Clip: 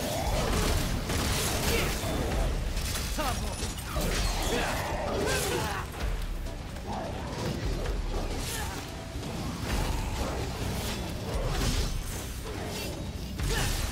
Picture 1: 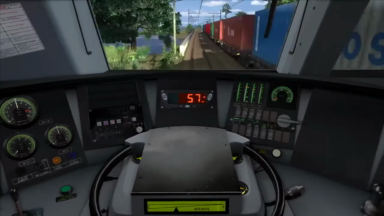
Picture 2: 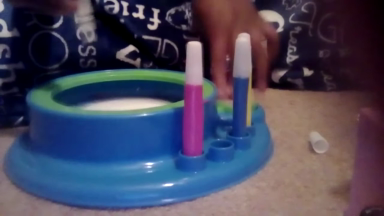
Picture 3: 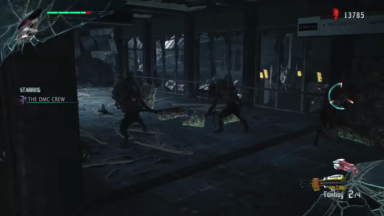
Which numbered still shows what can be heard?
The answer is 3